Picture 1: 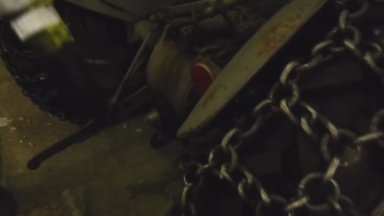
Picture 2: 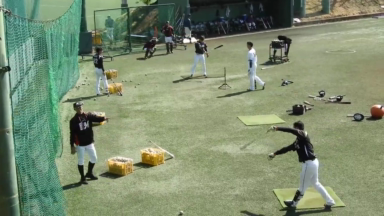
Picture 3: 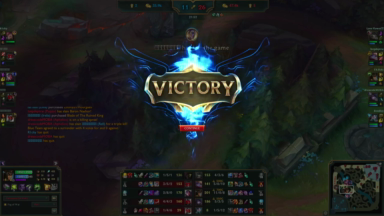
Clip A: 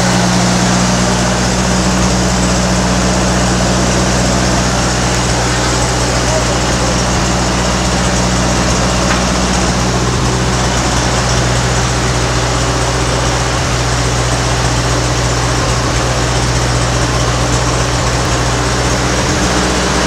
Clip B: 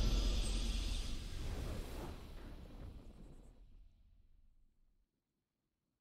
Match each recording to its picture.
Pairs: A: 1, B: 3